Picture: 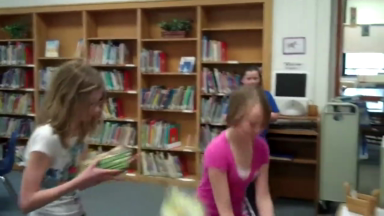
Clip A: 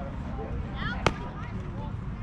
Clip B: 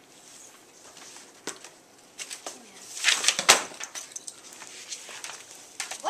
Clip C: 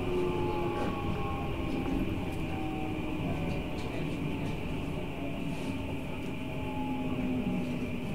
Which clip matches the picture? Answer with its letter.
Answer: B